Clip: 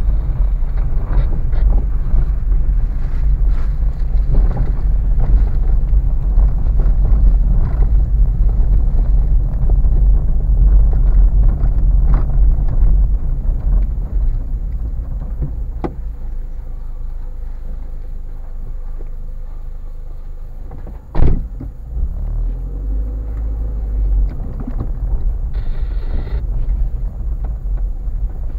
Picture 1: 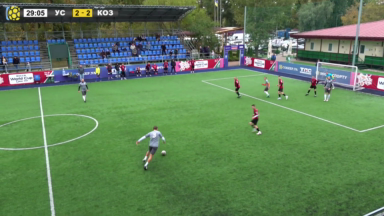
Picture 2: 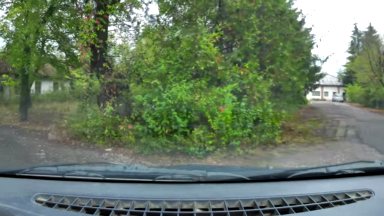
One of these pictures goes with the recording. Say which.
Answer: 2